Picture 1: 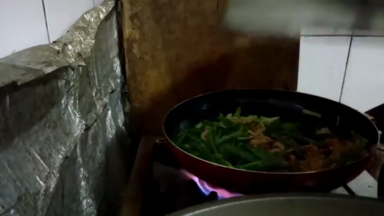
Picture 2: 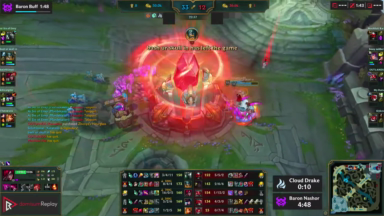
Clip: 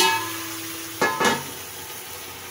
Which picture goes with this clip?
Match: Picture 1